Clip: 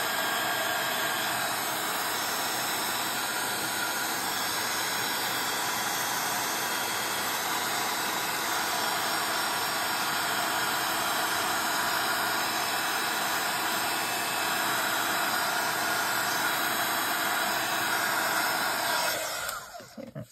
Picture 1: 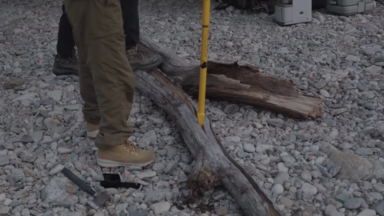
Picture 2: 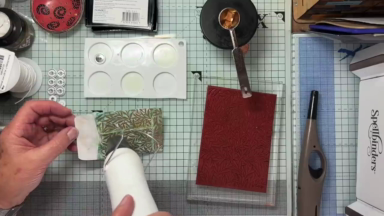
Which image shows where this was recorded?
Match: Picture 2